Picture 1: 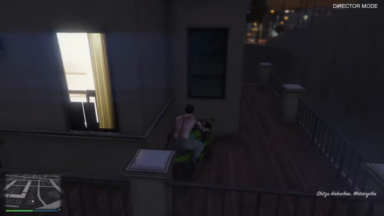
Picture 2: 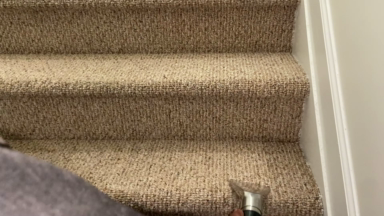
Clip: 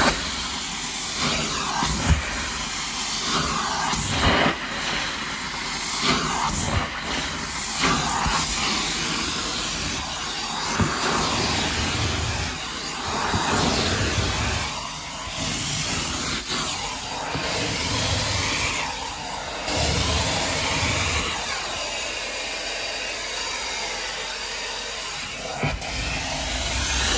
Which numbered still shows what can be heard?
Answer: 2